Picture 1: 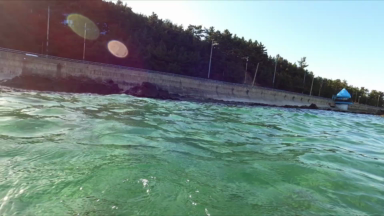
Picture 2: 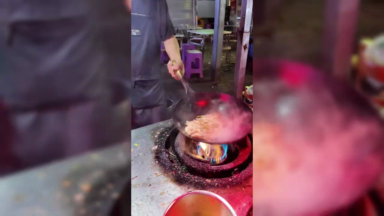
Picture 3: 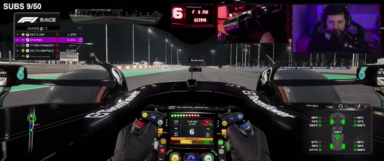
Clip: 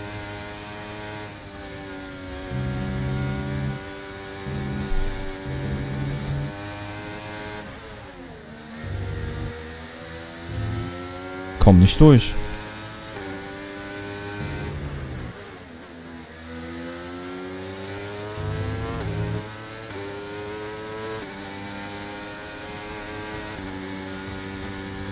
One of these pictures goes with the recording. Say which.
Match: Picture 3